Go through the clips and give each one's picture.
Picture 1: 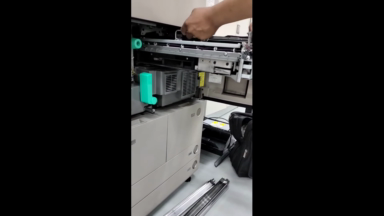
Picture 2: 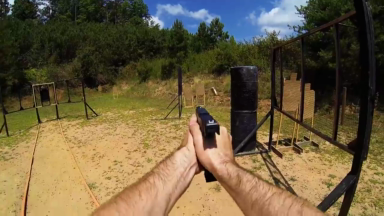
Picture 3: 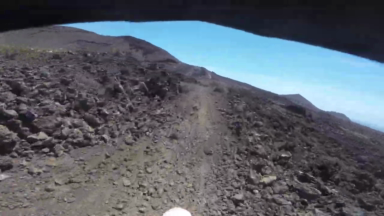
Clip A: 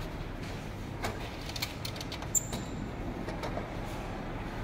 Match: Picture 1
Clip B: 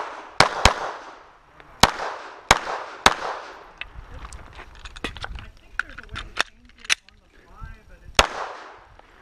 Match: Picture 2